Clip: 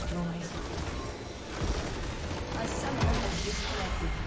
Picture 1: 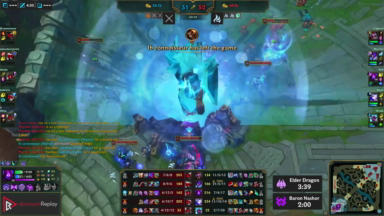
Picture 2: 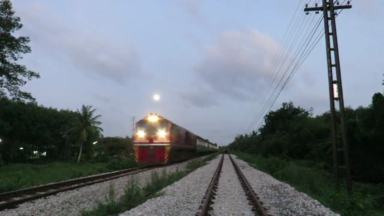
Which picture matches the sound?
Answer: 1